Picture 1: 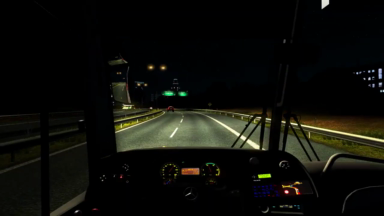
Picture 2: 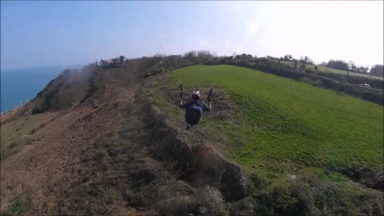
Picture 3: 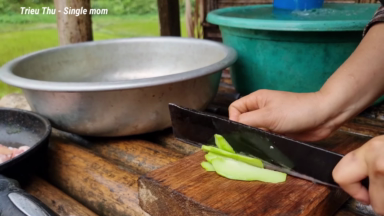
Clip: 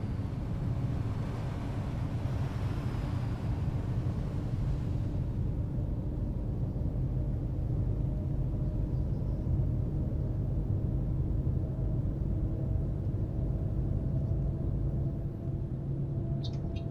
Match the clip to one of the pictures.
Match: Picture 1